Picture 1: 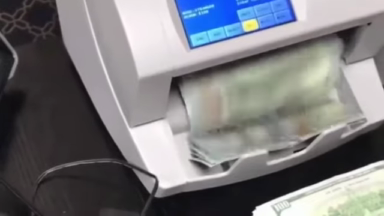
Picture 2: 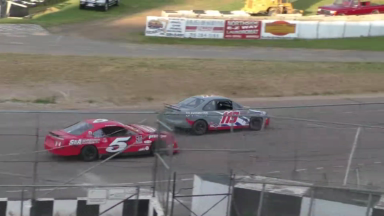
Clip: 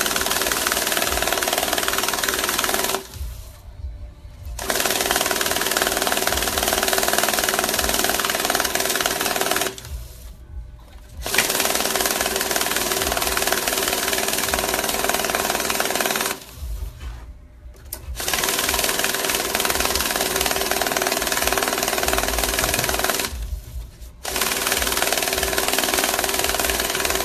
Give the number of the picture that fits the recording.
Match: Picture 1